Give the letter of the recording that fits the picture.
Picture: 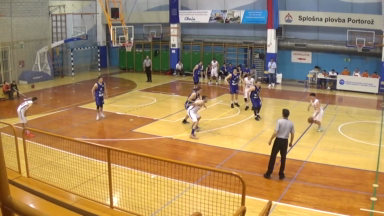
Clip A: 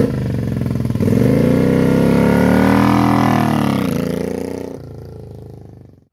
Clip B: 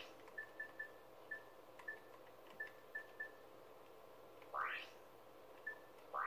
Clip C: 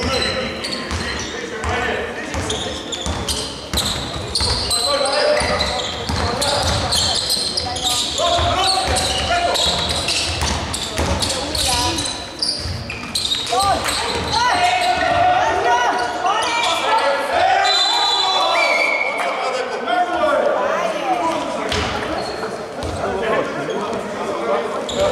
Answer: C